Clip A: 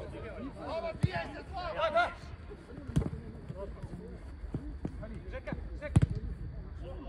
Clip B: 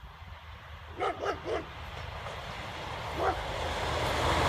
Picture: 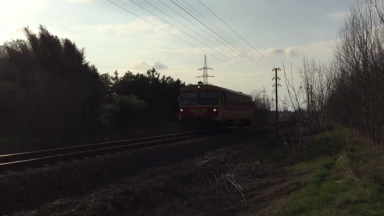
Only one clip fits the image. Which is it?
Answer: B